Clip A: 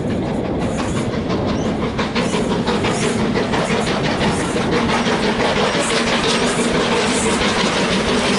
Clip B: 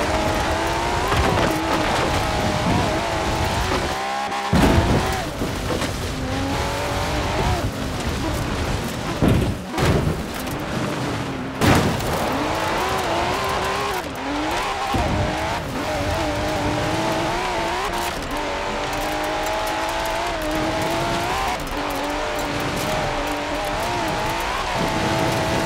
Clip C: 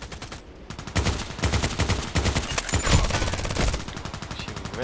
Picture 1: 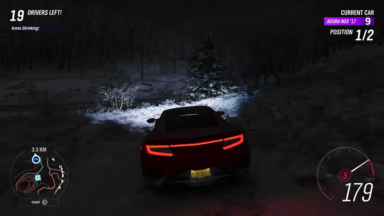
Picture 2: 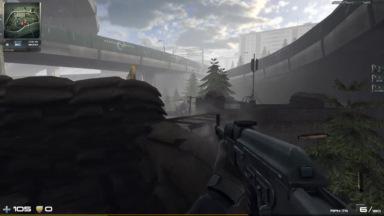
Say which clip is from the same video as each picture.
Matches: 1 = B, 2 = C